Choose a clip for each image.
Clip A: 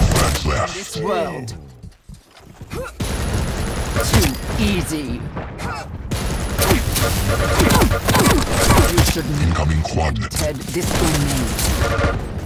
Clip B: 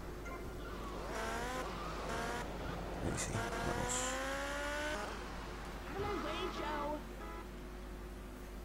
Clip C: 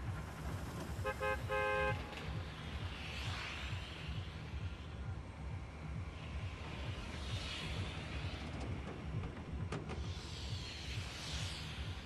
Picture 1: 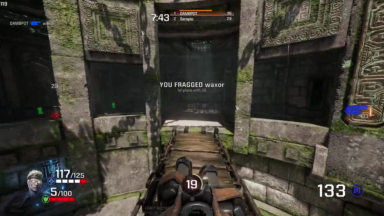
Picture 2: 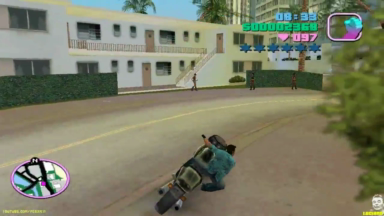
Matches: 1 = A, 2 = B